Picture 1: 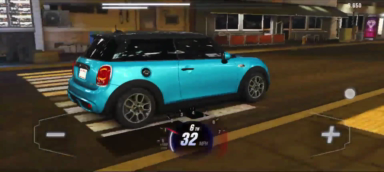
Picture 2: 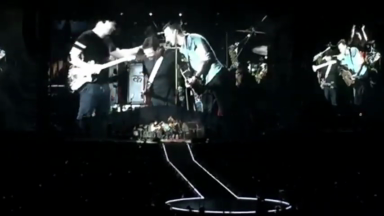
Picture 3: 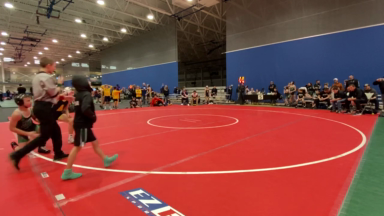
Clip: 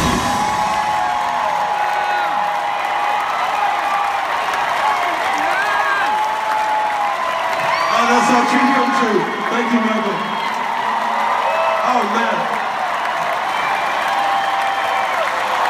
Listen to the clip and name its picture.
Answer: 2